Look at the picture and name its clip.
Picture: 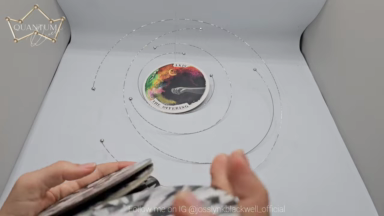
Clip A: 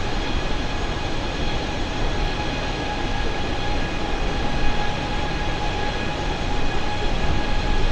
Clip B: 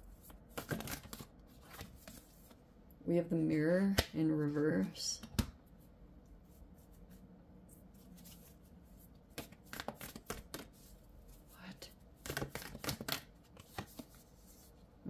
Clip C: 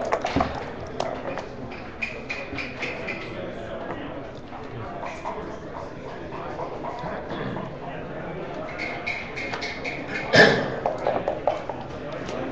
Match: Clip B